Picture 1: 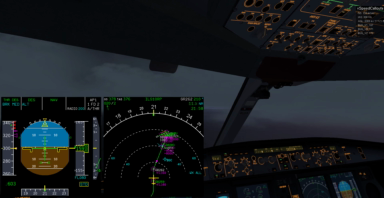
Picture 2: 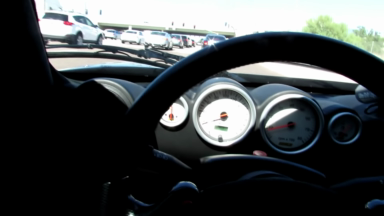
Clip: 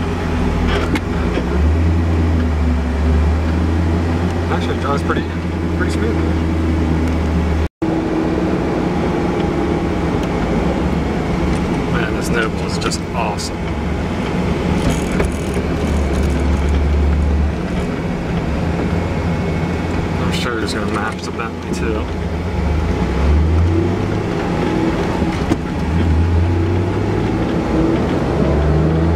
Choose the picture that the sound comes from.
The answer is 2